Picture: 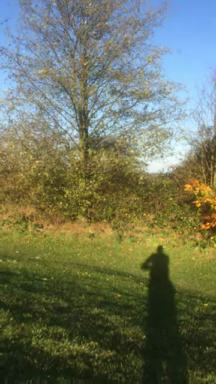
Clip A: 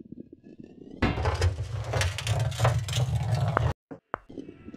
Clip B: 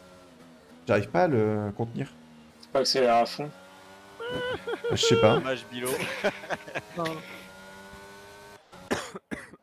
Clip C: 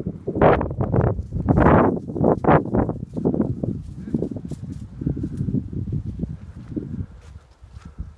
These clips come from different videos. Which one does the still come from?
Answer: C